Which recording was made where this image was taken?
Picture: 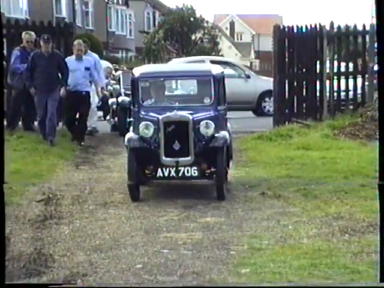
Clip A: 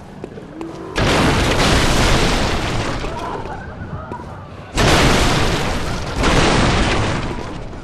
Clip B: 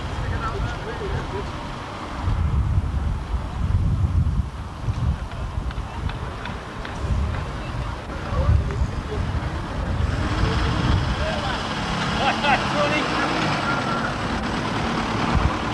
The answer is B